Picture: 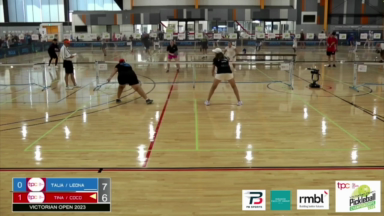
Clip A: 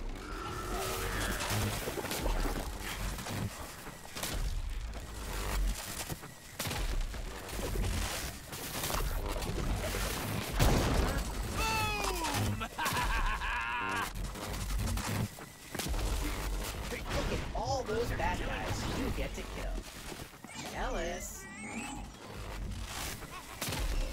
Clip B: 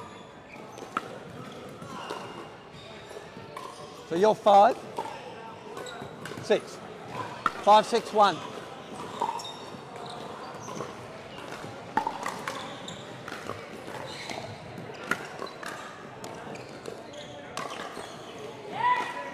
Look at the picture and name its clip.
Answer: B